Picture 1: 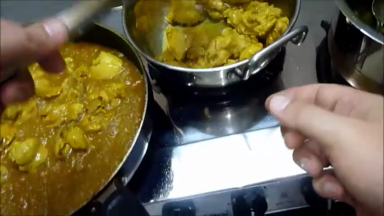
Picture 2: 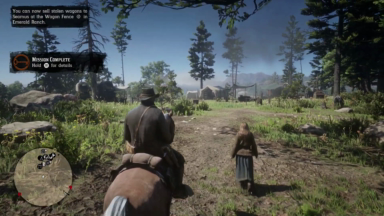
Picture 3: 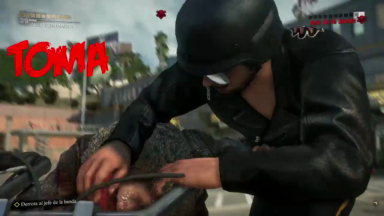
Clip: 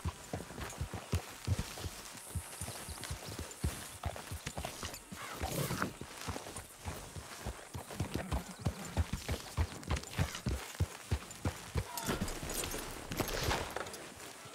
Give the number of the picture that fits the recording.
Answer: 2